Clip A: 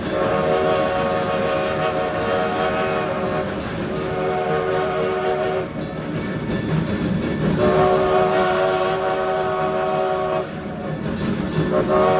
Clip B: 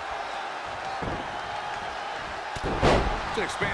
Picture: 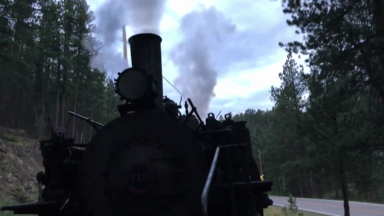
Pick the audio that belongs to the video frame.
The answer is A